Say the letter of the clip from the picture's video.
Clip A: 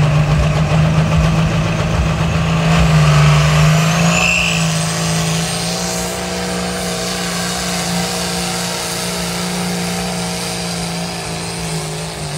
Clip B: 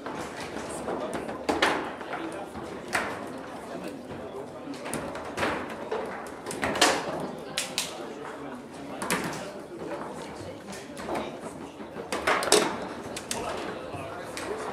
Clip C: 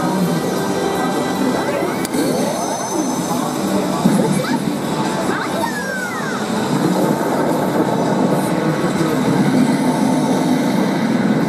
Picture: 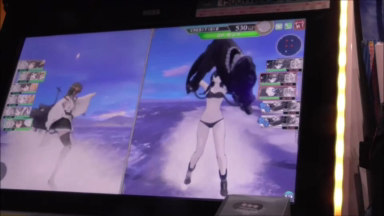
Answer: C